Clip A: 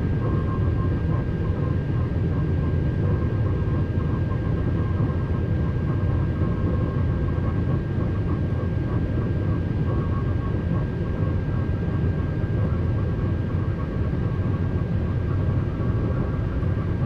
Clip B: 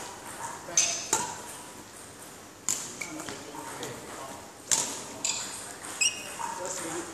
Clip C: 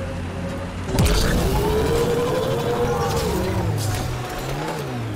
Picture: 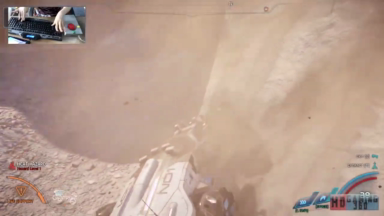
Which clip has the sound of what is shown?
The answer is C